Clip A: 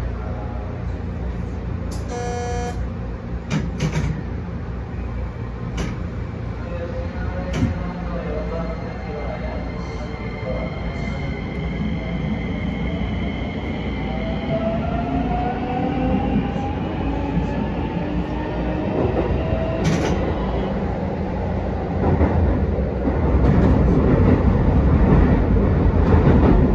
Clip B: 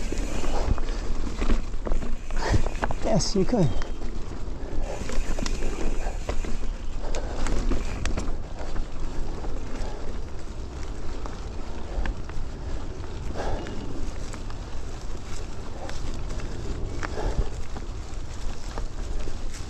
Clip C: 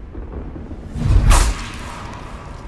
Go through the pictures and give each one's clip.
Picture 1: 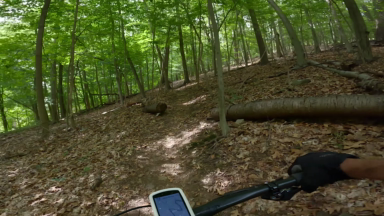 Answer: B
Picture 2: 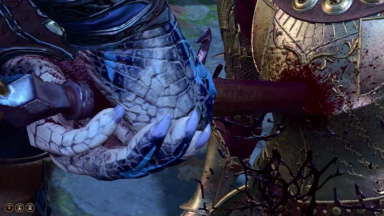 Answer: C